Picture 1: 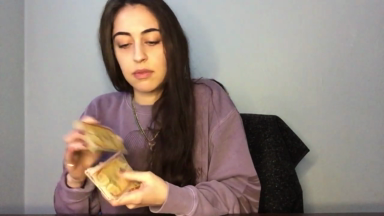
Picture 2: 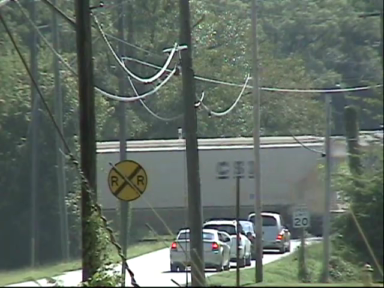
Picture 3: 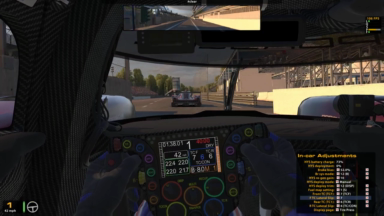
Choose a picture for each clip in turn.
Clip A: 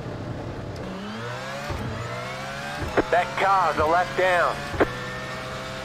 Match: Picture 3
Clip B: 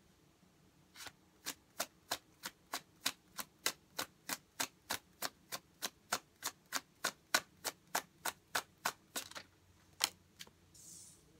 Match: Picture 1